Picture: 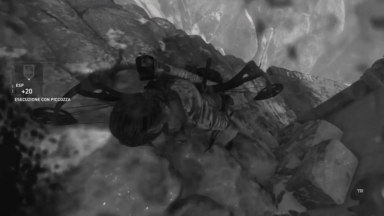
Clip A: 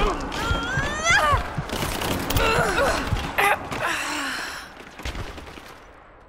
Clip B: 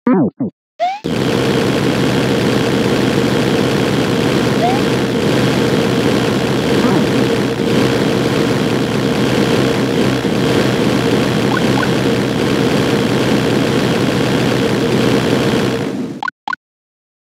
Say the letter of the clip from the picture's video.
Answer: A